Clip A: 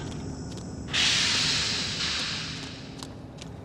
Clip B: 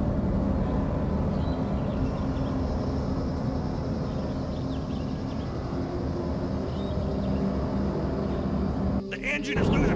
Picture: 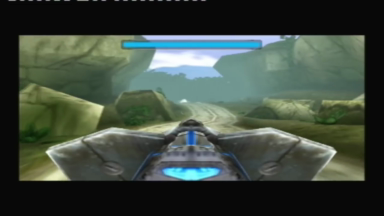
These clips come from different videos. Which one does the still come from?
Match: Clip B